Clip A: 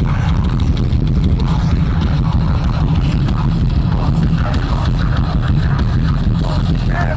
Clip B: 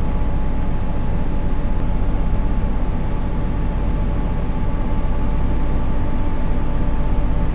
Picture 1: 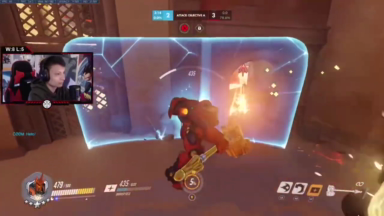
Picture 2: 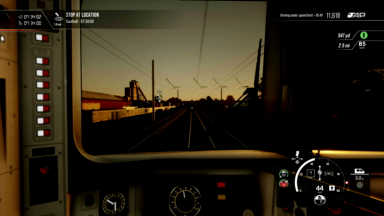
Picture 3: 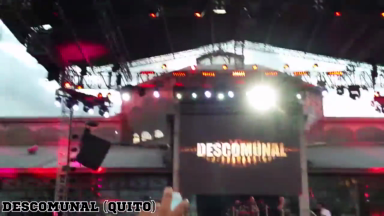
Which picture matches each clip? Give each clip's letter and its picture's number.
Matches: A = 3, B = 2